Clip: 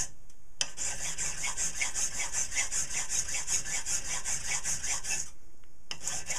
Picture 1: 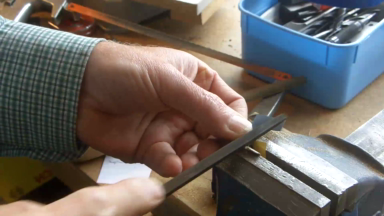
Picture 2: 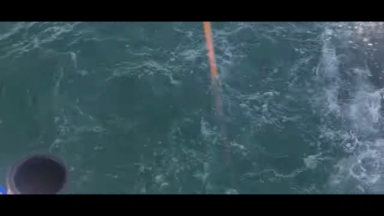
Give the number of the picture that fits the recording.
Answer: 1